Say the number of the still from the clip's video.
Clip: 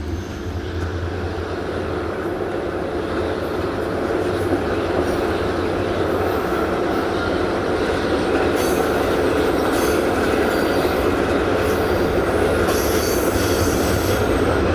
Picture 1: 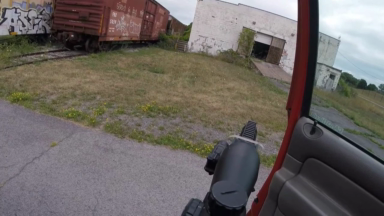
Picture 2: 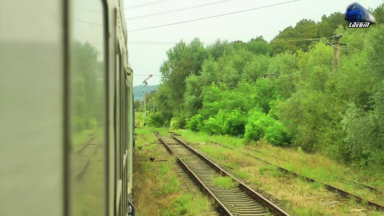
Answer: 2